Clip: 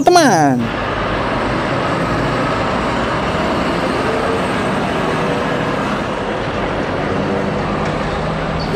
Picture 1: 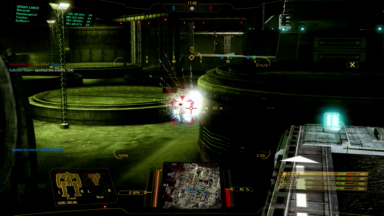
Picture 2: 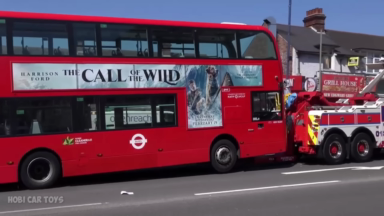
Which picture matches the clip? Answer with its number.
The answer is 2